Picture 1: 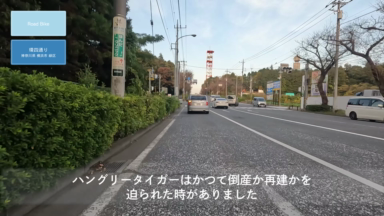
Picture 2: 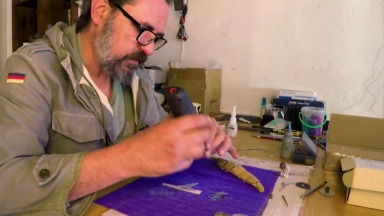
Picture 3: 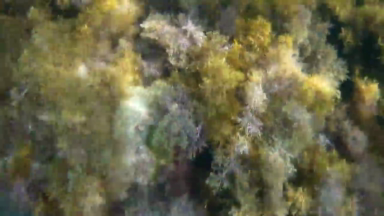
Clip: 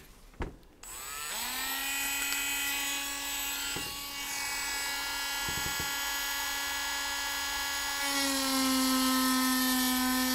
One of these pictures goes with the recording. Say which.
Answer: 2